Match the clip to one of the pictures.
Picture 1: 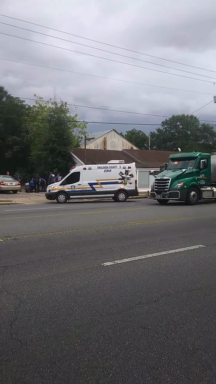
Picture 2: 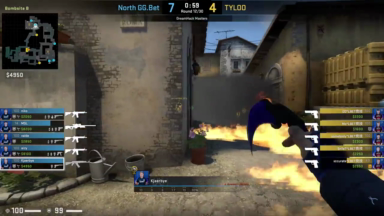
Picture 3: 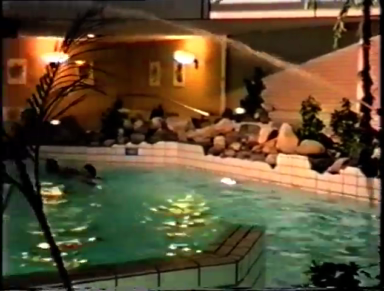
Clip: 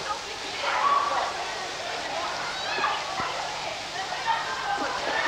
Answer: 3